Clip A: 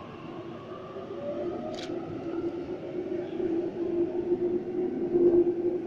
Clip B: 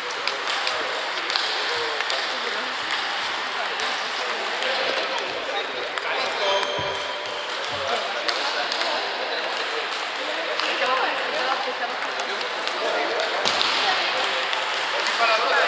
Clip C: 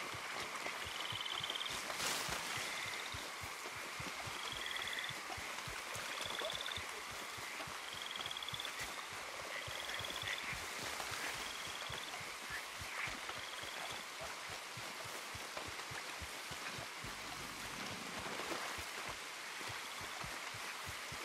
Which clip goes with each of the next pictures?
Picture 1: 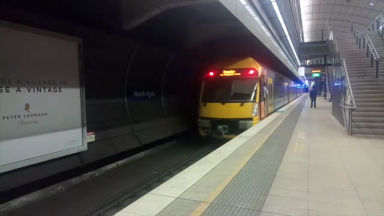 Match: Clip A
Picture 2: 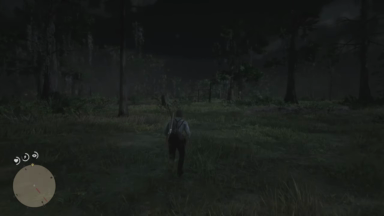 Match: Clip C